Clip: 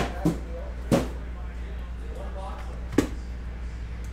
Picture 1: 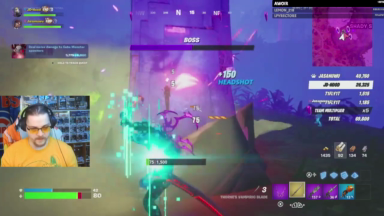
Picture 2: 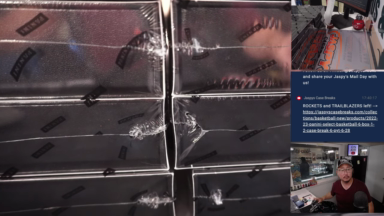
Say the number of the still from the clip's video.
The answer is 2